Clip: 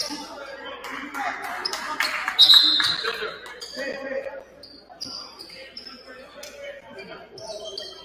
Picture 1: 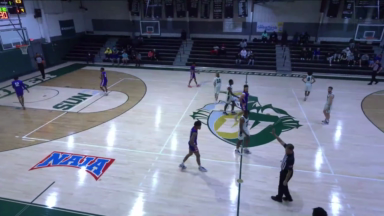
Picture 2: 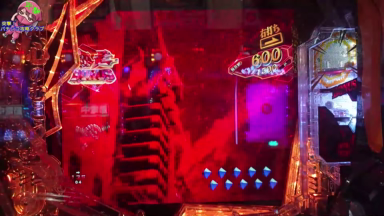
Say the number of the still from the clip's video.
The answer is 1